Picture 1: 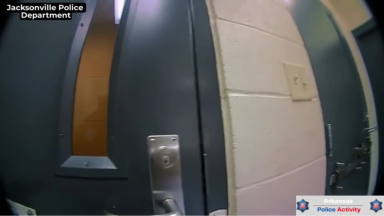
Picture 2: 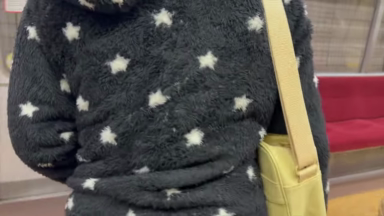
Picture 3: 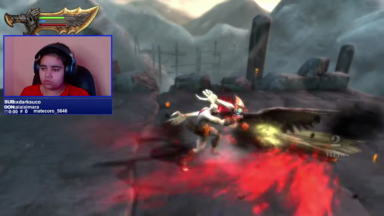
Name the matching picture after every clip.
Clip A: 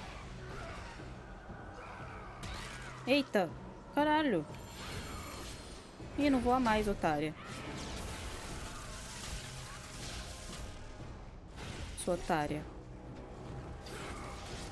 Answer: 3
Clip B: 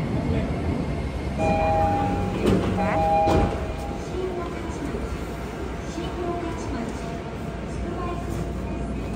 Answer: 2